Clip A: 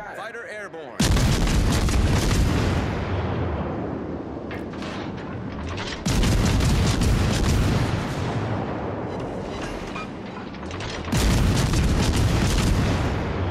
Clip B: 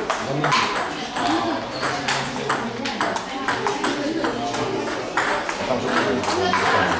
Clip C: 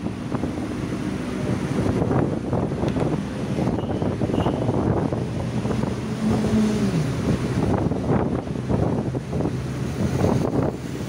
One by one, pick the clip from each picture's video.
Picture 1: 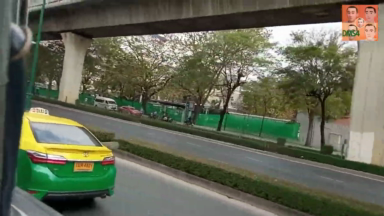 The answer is C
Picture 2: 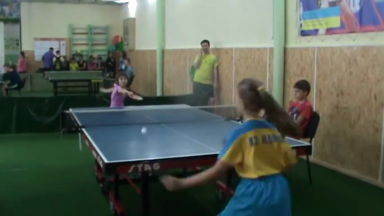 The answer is B